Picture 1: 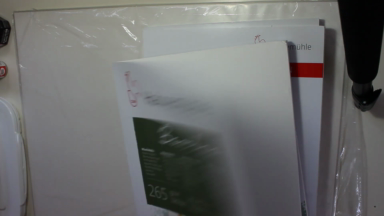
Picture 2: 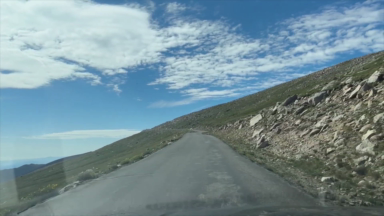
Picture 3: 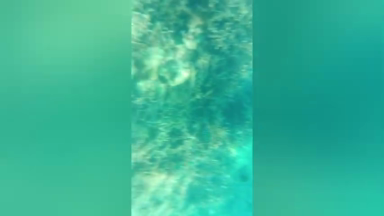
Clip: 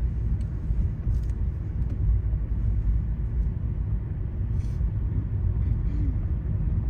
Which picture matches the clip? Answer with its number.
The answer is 2